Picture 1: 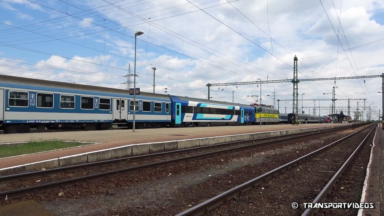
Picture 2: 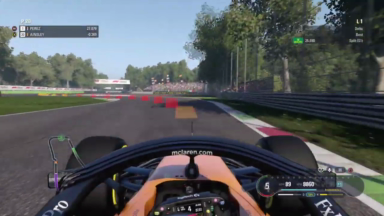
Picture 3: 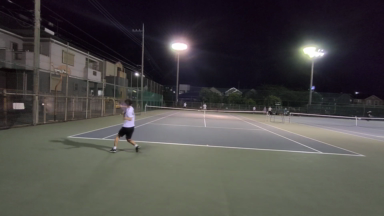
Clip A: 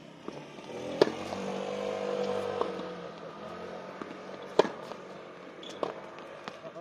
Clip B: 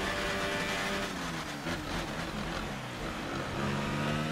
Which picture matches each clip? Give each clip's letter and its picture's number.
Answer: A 3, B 2